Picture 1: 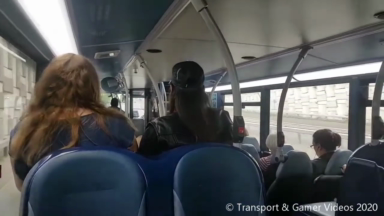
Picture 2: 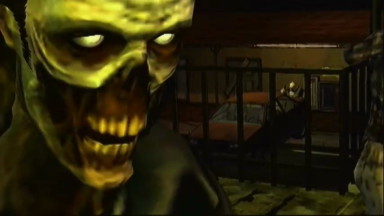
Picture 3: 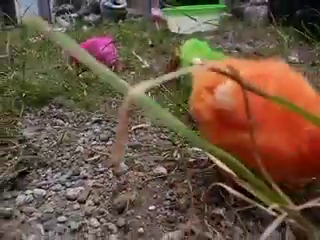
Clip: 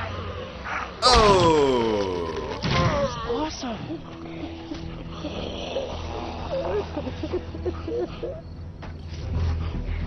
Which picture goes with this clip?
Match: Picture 2